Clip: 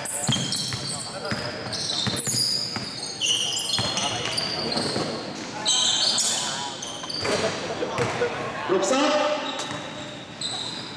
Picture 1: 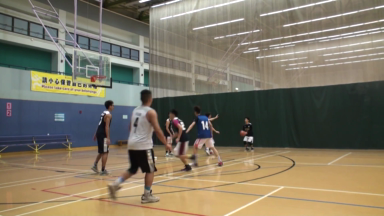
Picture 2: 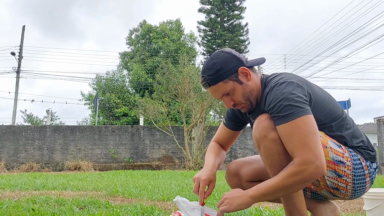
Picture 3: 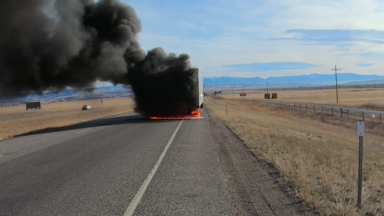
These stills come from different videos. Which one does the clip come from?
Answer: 1